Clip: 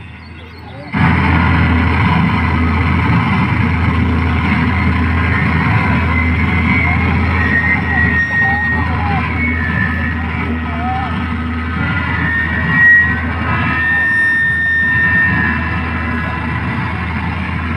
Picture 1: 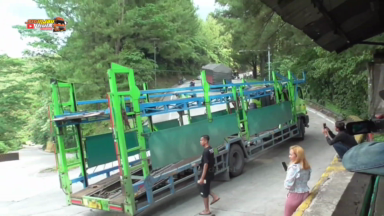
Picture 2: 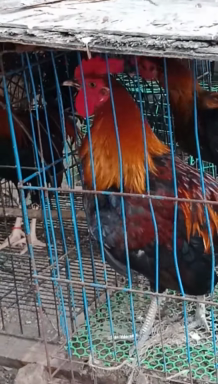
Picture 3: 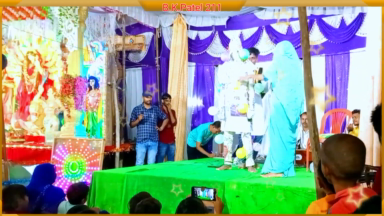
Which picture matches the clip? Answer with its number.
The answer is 3